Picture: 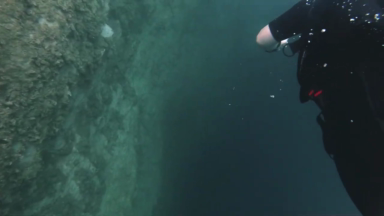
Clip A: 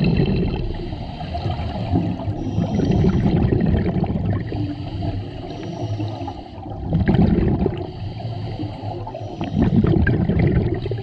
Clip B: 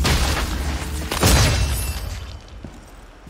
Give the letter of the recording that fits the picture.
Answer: A